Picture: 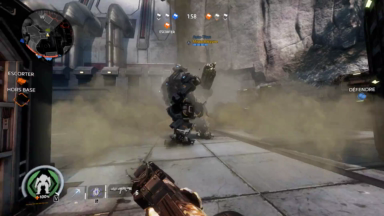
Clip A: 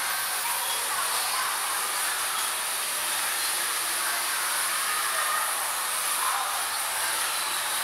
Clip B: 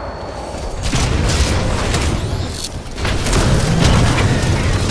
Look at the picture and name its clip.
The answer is B